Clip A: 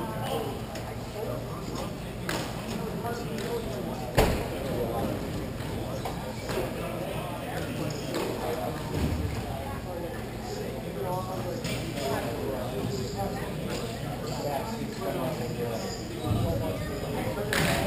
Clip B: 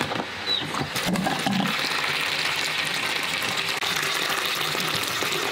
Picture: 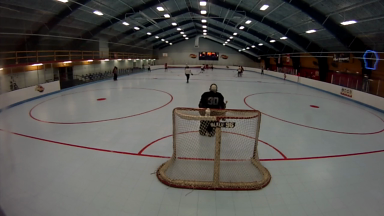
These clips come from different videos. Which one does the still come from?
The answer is A